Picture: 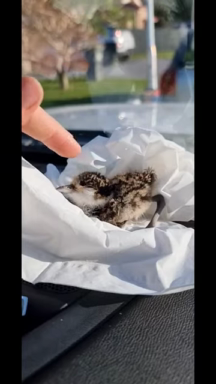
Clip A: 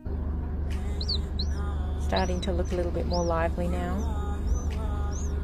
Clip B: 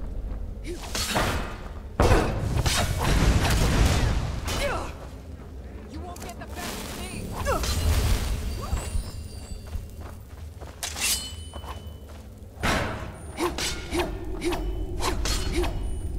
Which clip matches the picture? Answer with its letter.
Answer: A